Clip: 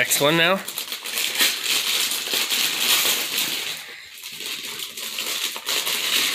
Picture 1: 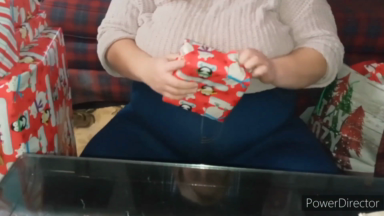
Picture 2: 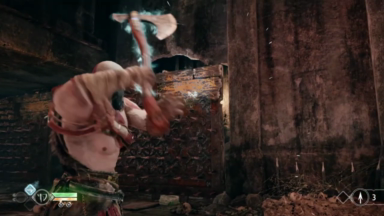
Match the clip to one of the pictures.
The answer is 1